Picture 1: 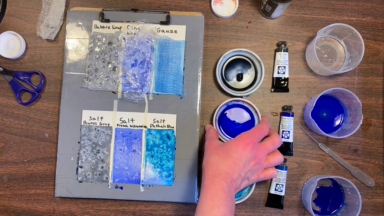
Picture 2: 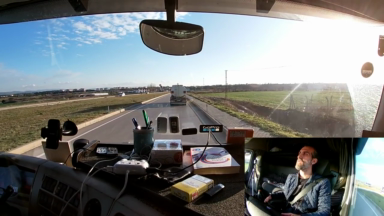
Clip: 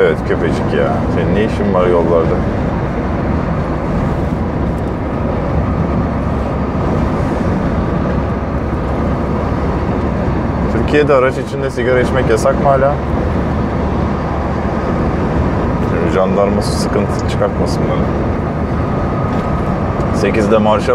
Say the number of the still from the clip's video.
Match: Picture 2